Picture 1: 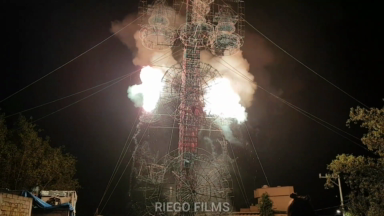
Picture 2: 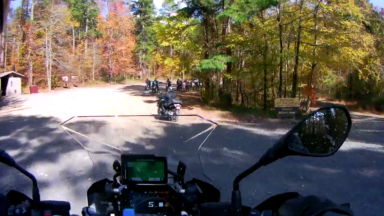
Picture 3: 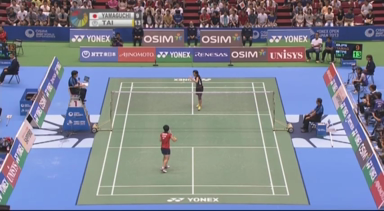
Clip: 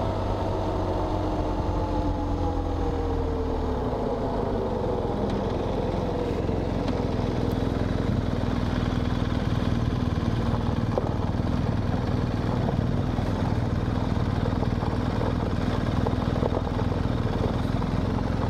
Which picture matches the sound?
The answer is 2